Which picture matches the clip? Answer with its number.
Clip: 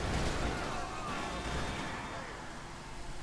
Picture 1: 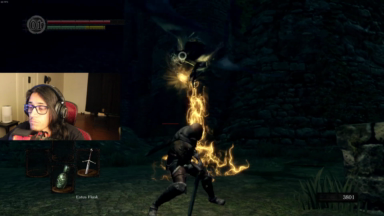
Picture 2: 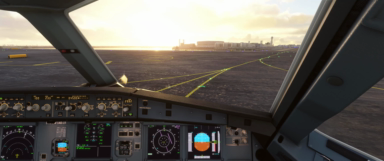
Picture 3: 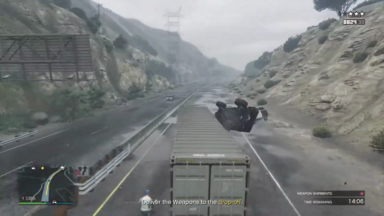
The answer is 3